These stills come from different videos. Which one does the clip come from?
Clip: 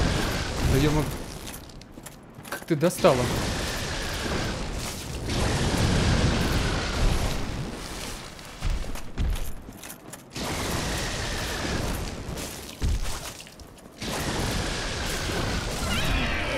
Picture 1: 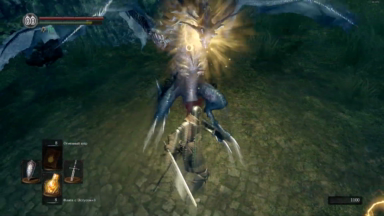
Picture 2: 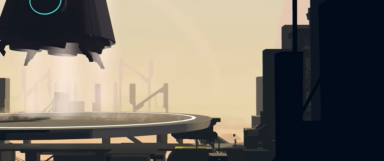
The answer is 1